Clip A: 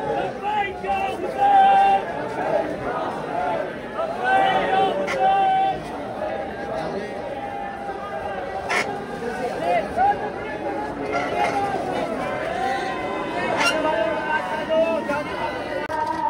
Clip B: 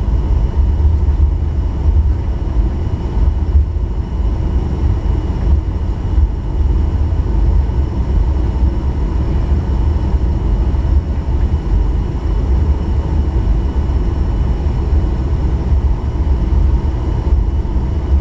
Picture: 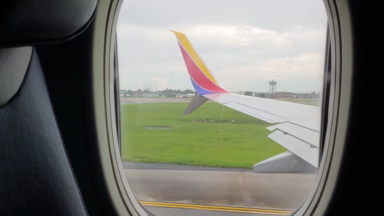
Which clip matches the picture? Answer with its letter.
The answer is B